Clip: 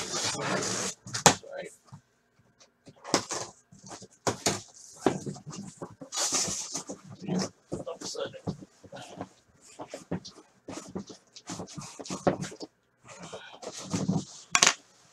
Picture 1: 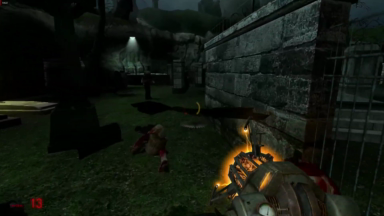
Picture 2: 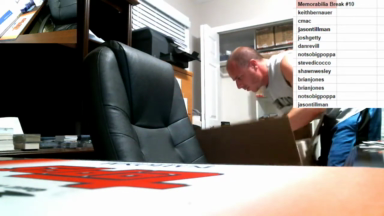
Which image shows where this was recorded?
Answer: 2